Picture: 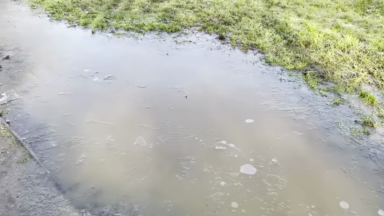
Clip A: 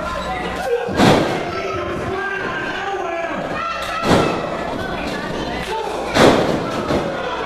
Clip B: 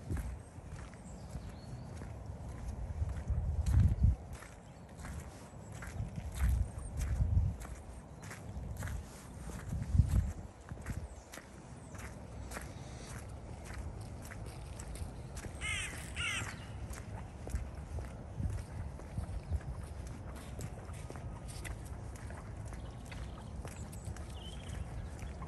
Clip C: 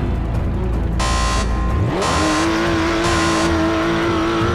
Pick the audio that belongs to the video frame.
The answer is B